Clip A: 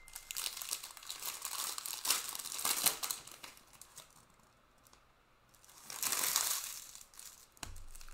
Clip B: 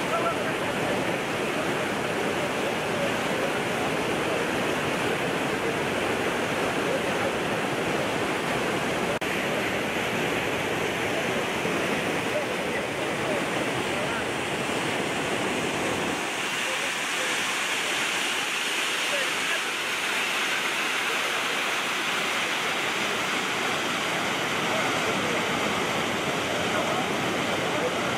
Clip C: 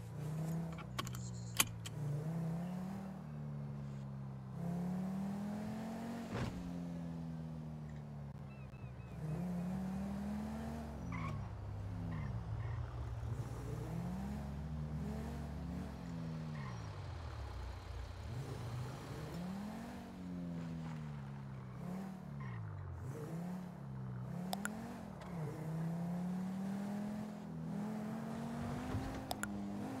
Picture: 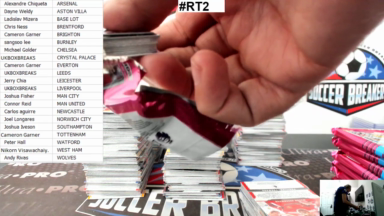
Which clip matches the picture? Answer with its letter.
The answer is A